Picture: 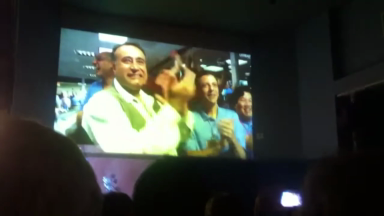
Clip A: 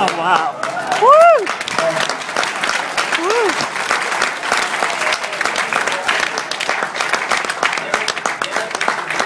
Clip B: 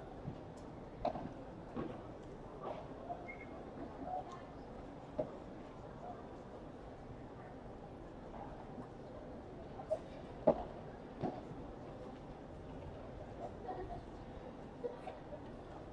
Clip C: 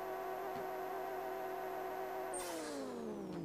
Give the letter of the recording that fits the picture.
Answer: A